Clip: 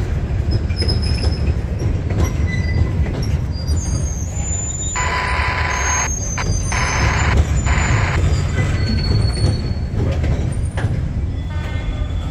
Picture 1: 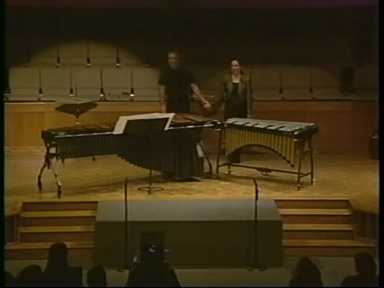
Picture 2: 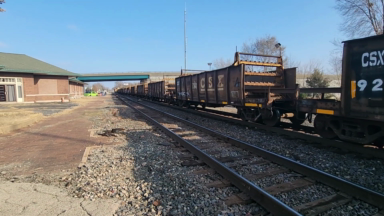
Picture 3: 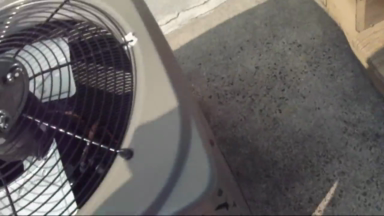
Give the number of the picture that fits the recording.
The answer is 2